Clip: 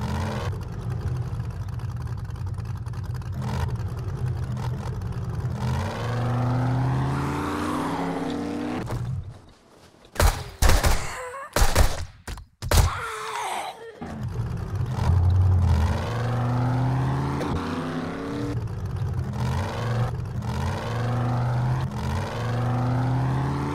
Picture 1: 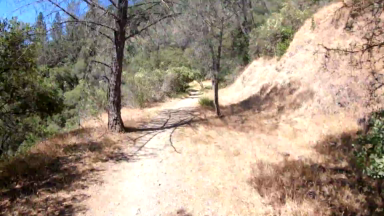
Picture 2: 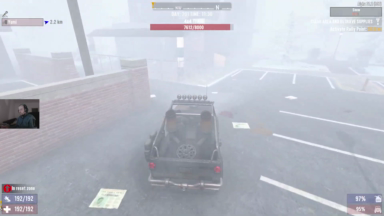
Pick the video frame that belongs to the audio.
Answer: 2